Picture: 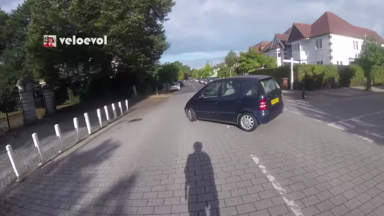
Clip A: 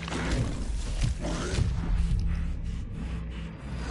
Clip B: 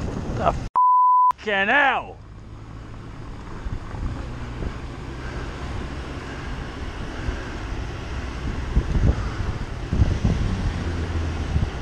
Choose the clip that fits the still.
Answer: B